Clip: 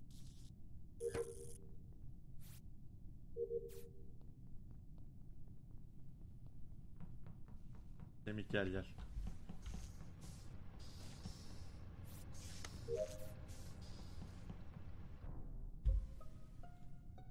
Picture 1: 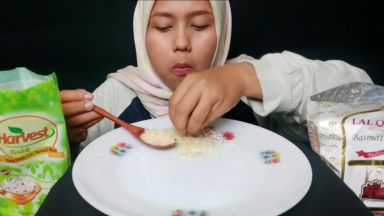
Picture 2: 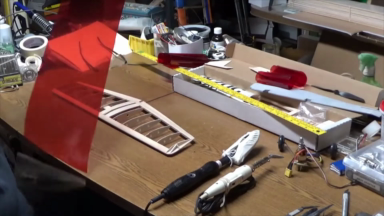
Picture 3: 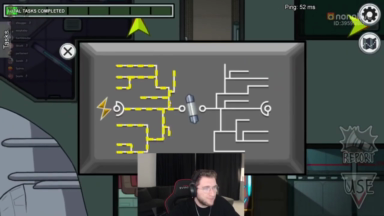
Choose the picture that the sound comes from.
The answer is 3